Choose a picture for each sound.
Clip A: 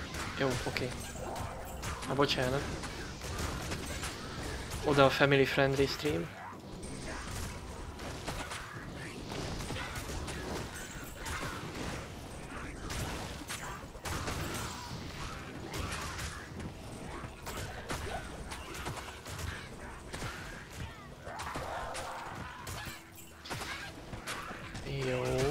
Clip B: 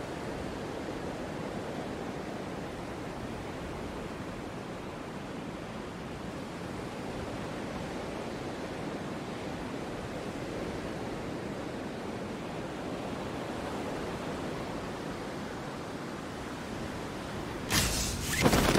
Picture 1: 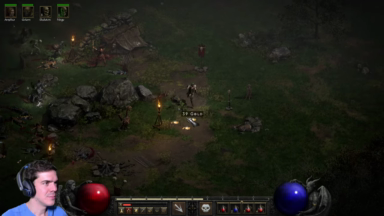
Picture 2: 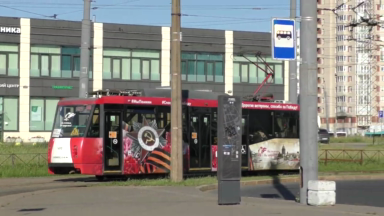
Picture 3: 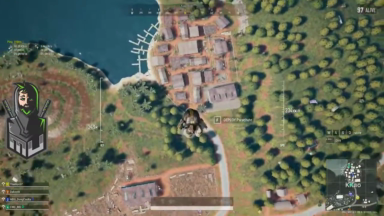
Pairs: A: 1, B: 3